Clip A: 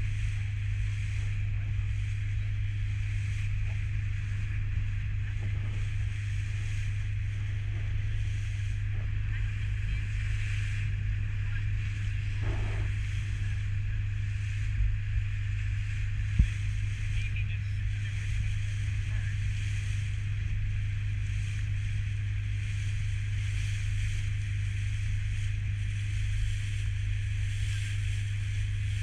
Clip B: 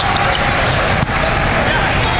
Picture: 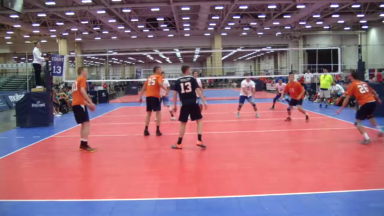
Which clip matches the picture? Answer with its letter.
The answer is B